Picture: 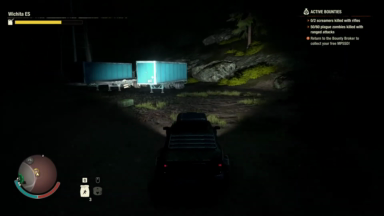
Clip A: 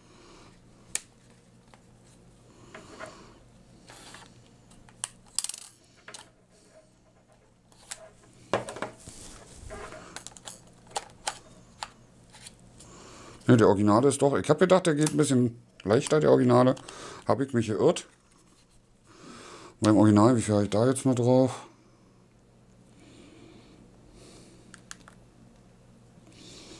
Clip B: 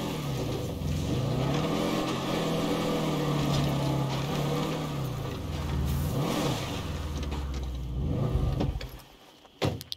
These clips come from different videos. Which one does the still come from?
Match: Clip B